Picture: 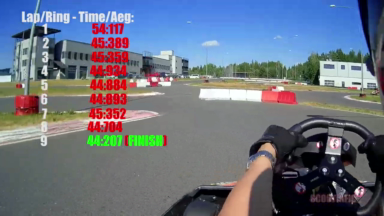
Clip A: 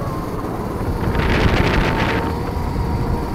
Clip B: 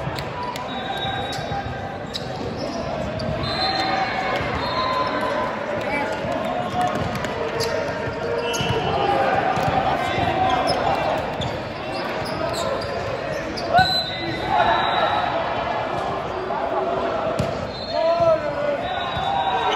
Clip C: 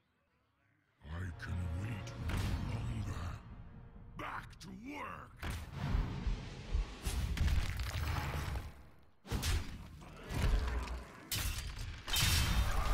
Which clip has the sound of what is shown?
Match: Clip A